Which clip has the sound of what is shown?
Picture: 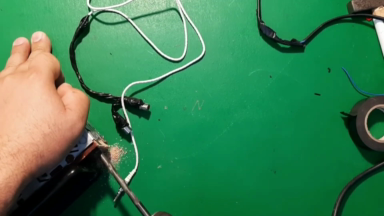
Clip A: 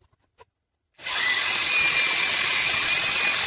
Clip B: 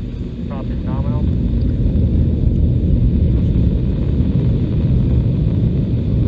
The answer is A